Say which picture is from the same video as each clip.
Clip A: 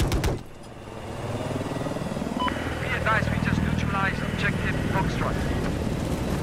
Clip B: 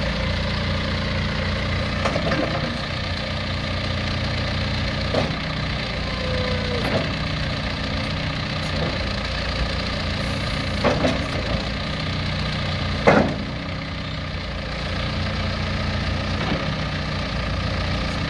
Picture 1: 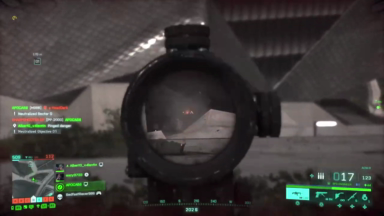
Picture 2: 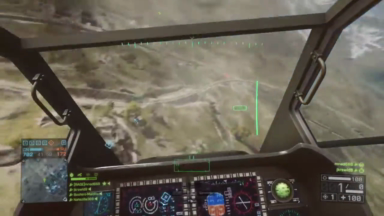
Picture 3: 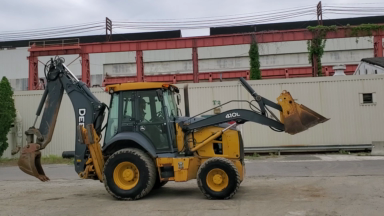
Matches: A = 2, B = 3